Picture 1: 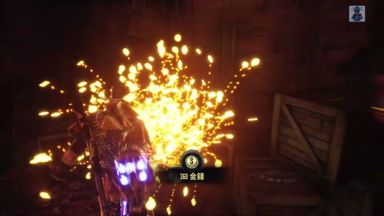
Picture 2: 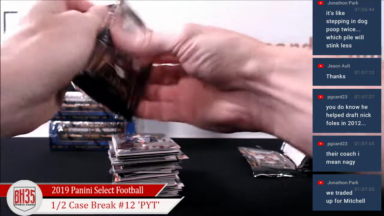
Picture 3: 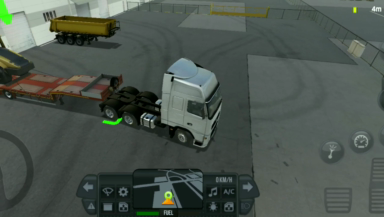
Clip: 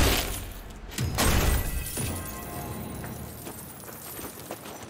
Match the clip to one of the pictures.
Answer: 1